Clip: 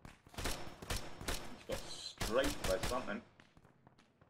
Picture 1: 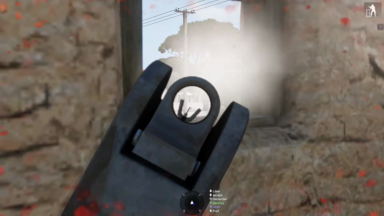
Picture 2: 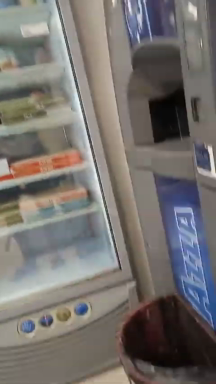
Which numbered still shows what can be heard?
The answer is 1